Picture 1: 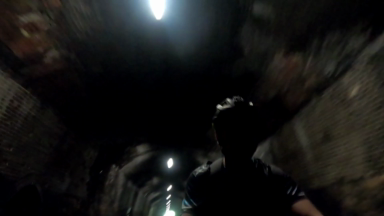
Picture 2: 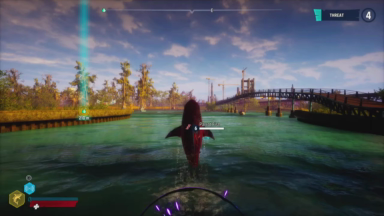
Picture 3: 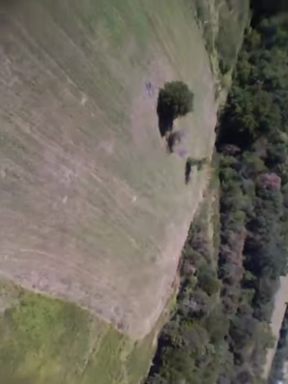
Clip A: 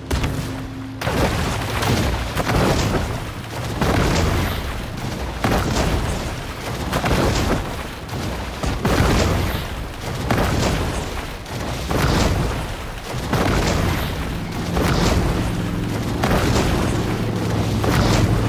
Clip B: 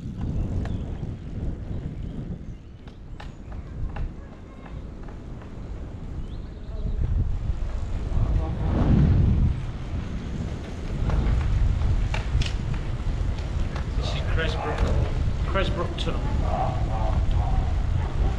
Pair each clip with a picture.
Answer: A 2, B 1